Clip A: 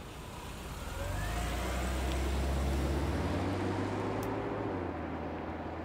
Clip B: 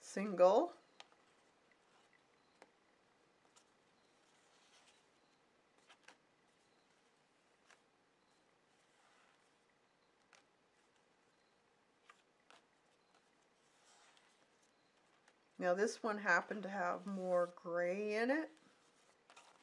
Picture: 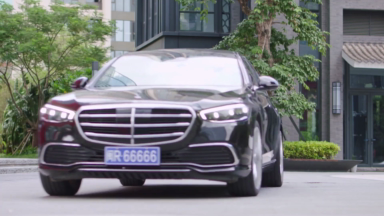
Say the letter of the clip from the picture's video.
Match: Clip A